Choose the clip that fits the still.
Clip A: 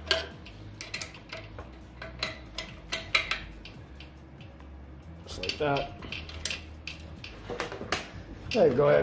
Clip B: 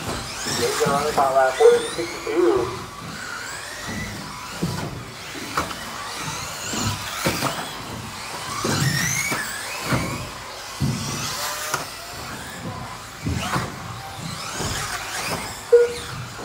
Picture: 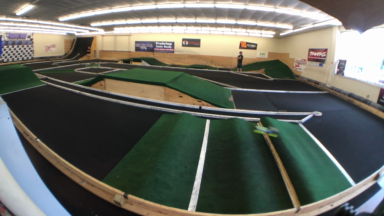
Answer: B